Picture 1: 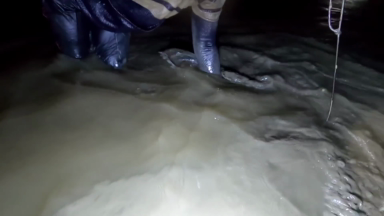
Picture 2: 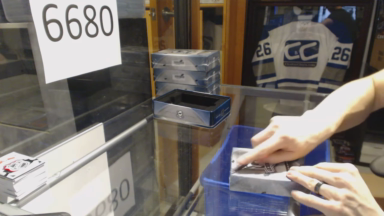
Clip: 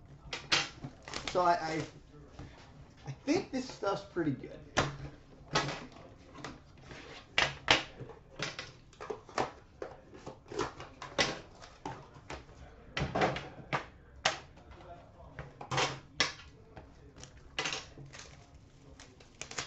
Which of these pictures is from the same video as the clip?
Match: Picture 2